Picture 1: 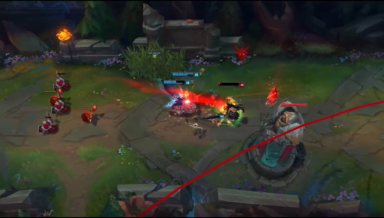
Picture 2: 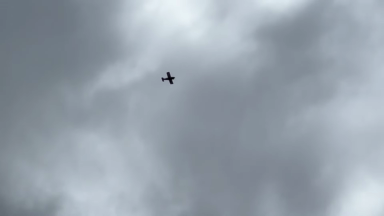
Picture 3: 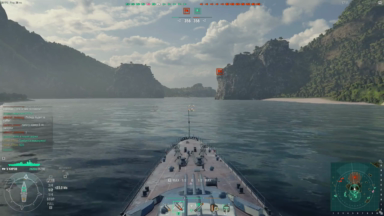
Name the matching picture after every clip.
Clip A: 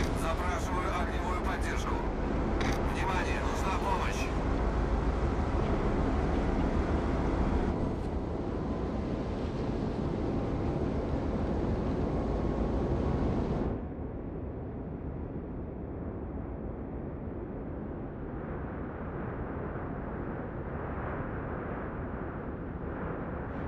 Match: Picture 3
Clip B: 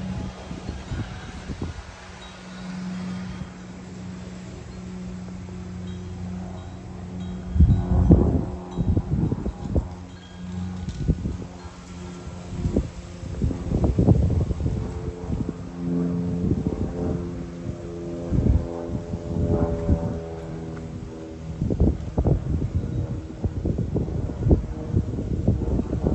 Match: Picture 2